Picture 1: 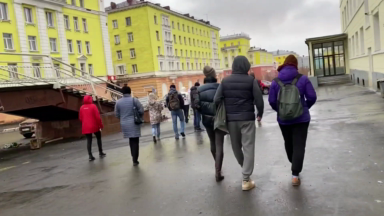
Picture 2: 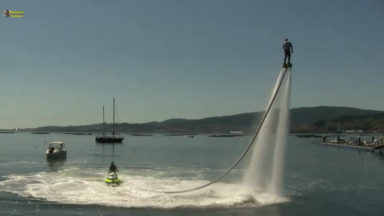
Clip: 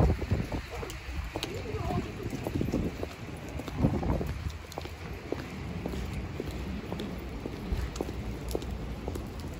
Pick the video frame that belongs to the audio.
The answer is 1